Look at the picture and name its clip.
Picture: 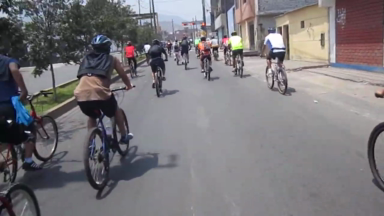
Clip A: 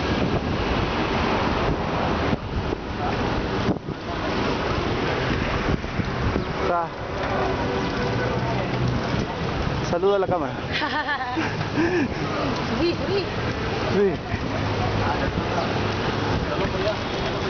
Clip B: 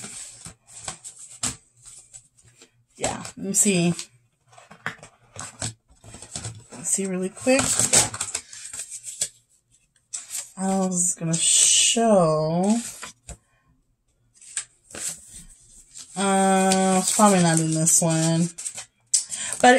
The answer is A